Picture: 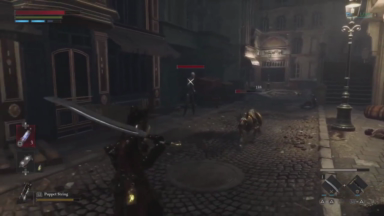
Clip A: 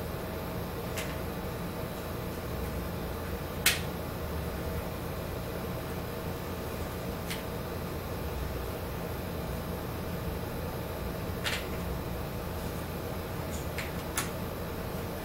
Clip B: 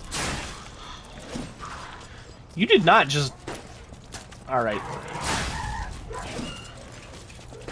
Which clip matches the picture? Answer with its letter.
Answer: B